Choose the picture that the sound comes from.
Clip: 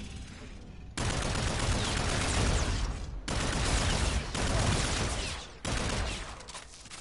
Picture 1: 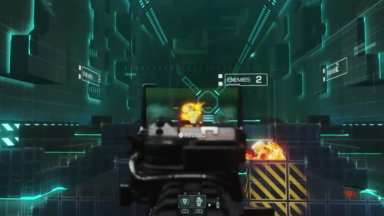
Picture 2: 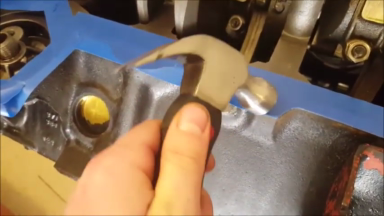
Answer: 1